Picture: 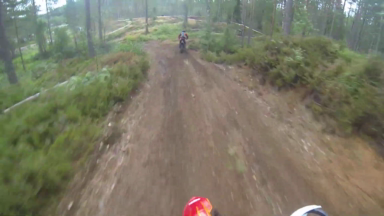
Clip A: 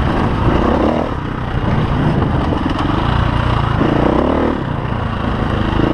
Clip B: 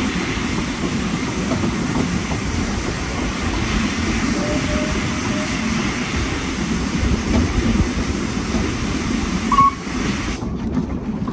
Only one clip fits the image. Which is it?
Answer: A